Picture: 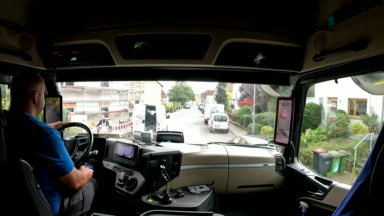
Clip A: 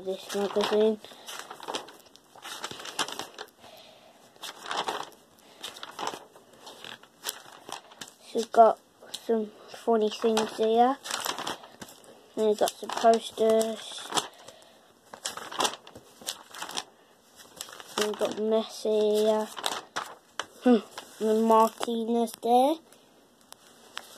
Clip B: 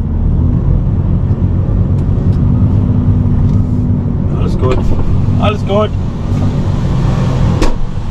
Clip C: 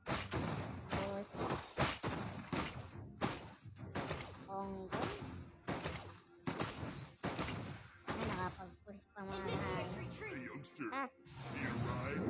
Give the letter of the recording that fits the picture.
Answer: B